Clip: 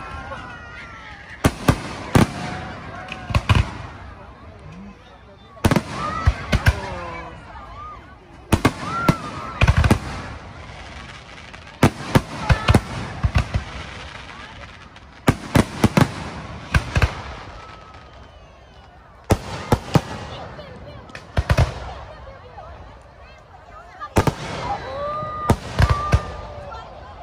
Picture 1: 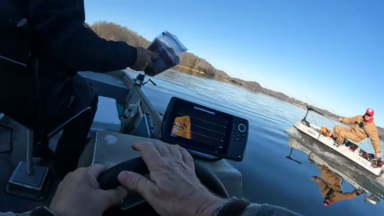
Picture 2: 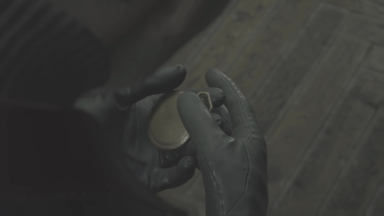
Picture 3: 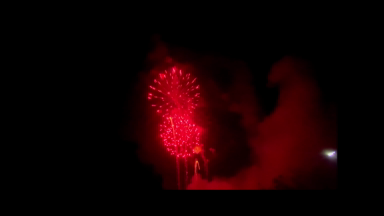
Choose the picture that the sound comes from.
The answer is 3